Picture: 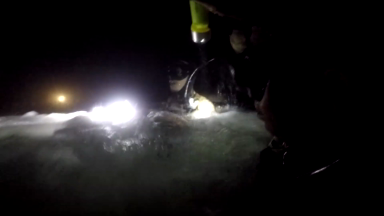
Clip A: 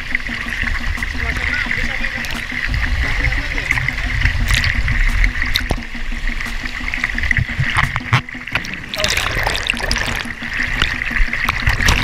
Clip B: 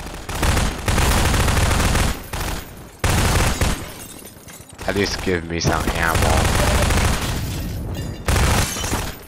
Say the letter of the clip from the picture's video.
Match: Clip A